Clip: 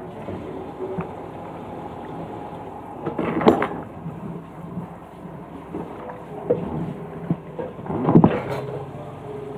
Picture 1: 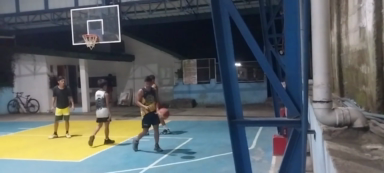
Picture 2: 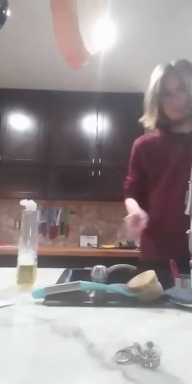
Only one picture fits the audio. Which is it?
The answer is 2